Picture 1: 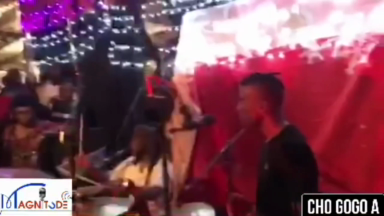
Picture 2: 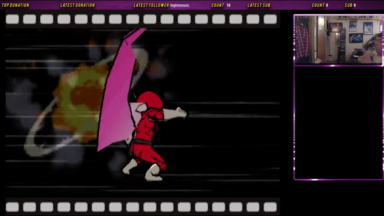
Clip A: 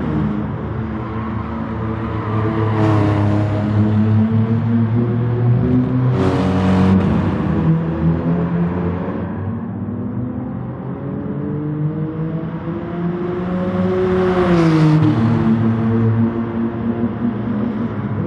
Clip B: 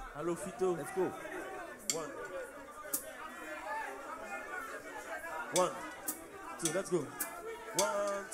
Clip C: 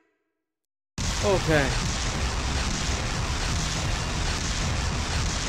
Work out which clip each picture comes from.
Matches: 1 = B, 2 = C